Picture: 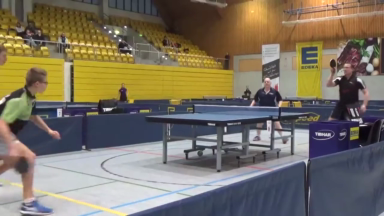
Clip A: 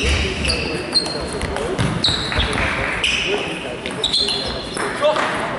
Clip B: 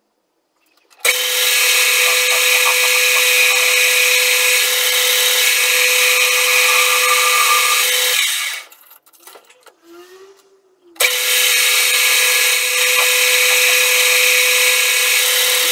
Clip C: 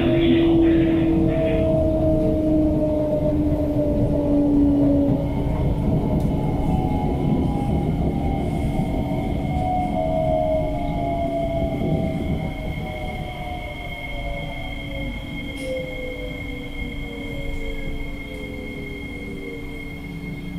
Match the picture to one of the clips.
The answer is A